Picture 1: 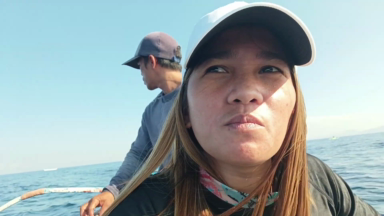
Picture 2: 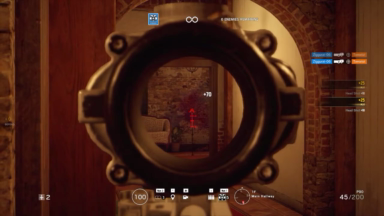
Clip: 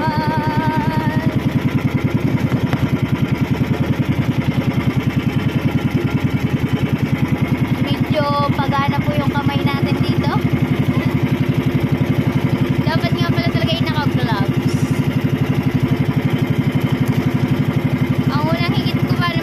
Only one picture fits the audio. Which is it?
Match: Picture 1